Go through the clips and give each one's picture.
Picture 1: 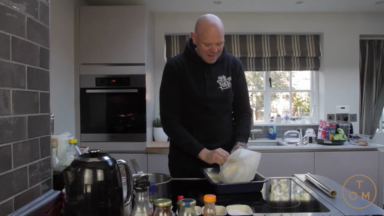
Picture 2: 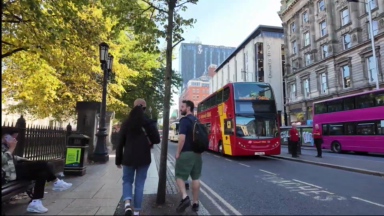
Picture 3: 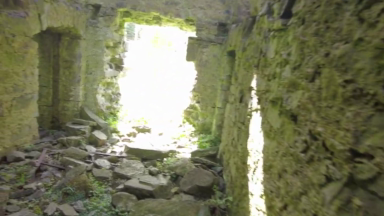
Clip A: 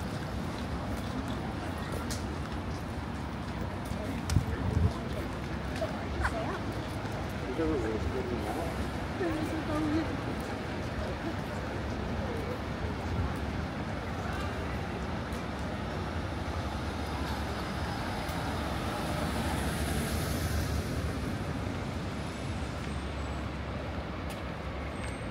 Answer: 2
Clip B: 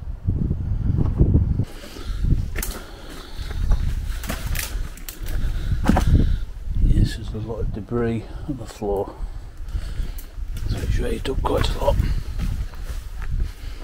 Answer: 3